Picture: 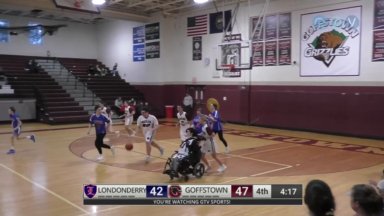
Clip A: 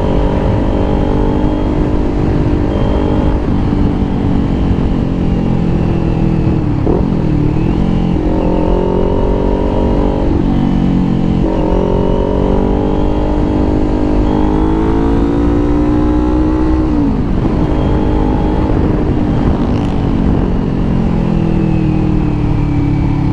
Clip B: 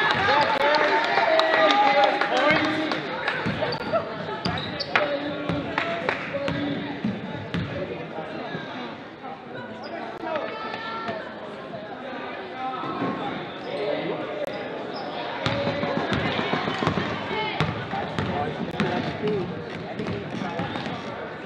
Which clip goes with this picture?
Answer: B